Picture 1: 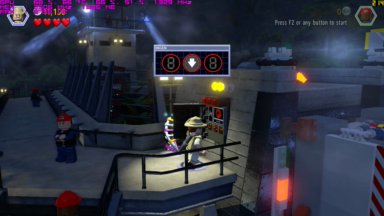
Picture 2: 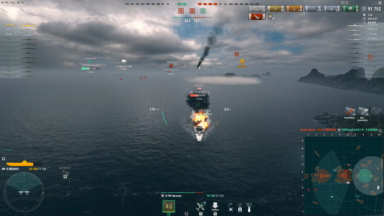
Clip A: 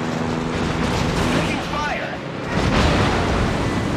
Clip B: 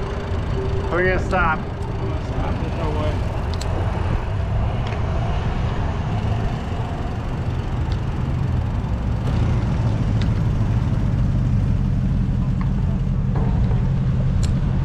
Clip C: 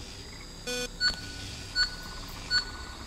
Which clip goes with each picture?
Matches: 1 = C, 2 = A